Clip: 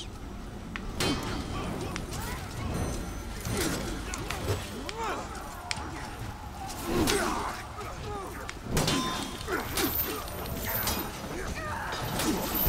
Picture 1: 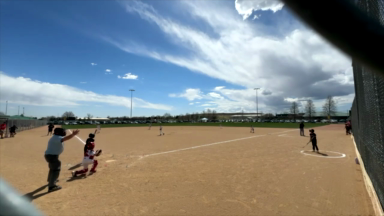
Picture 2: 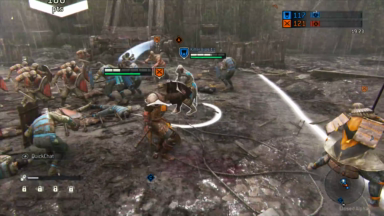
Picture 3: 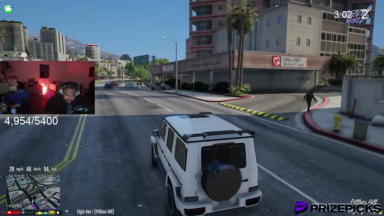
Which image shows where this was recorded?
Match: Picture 2